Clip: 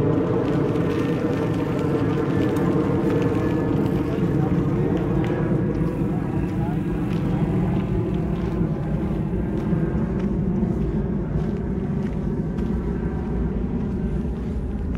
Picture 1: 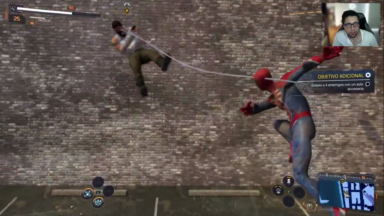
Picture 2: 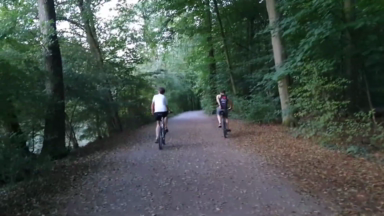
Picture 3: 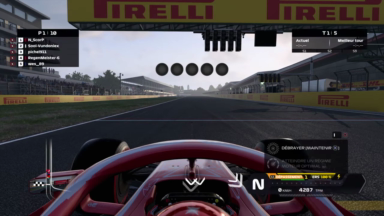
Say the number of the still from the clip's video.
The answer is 2